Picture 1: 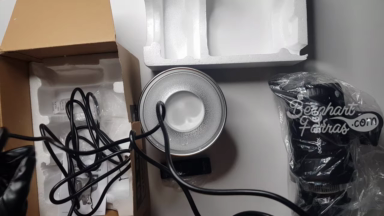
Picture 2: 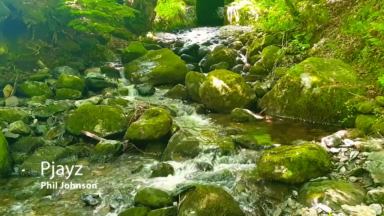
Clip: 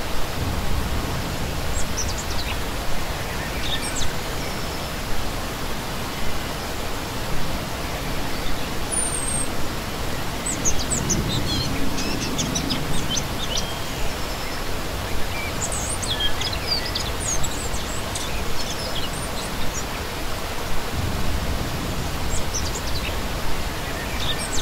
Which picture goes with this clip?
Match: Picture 2